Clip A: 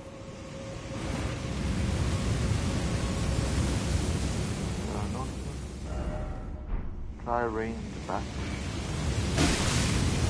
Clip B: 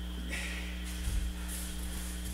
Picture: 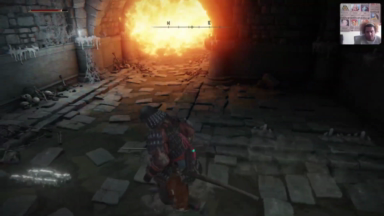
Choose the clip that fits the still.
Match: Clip A